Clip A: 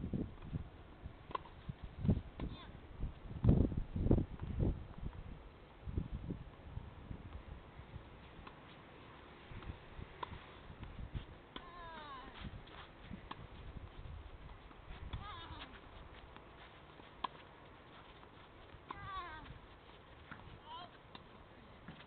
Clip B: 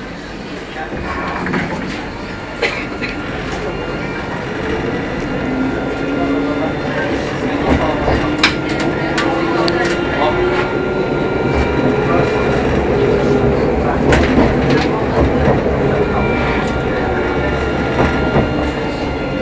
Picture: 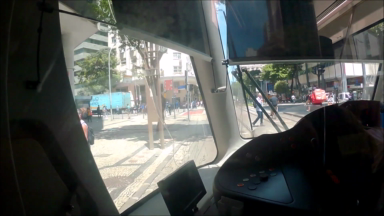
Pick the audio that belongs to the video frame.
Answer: B